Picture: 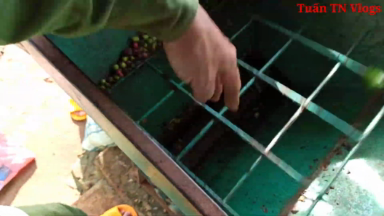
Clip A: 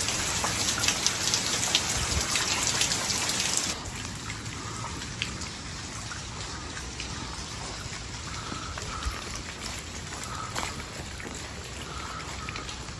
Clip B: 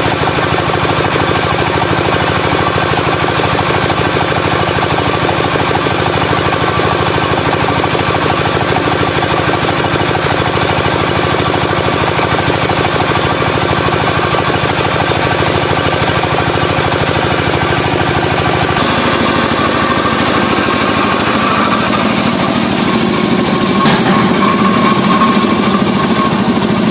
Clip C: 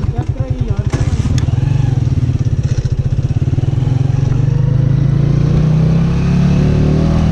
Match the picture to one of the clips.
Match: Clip B